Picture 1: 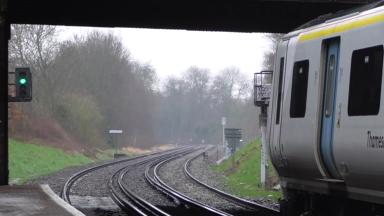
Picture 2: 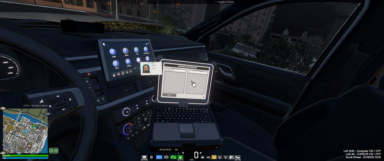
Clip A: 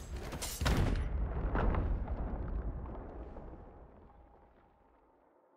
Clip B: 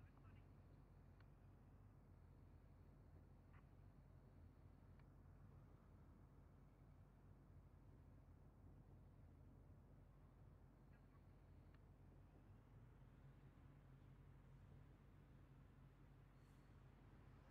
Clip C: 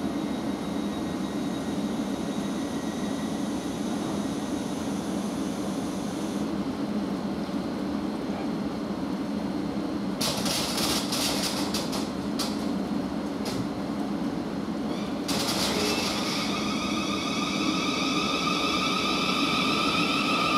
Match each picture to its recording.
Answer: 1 C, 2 B